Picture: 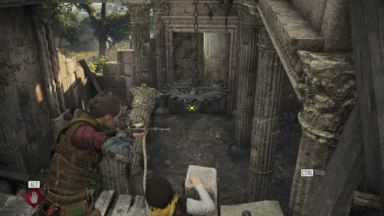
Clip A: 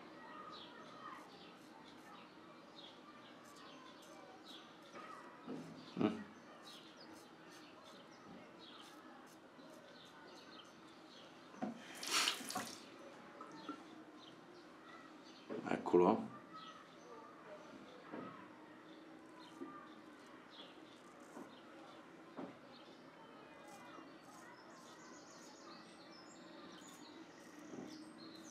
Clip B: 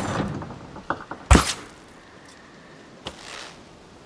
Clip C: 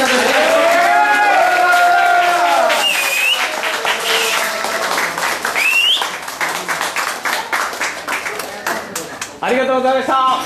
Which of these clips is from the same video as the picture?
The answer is B